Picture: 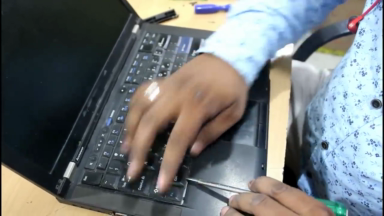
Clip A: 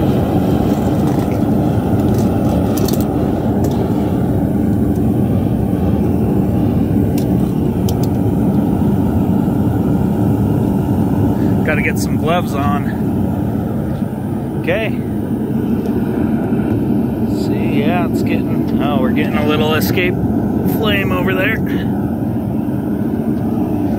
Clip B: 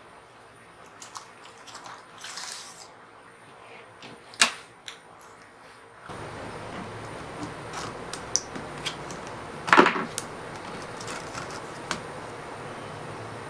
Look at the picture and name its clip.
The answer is B